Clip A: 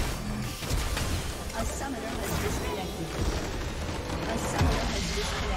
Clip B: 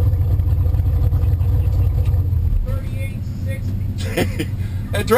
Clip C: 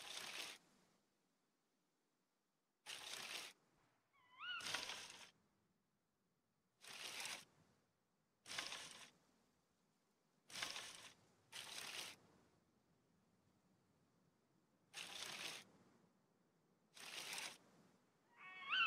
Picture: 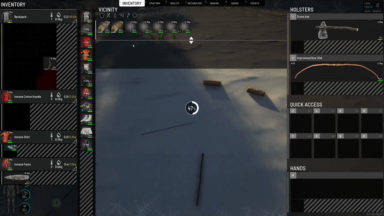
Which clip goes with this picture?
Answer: C